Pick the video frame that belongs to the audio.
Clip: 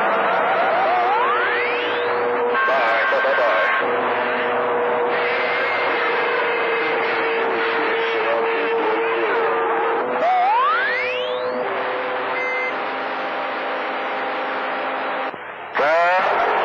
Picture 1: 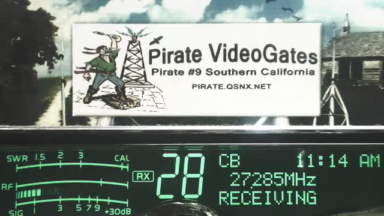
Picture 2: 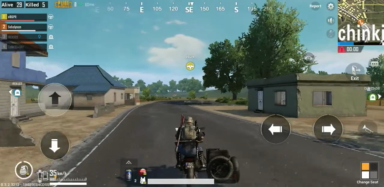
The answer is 1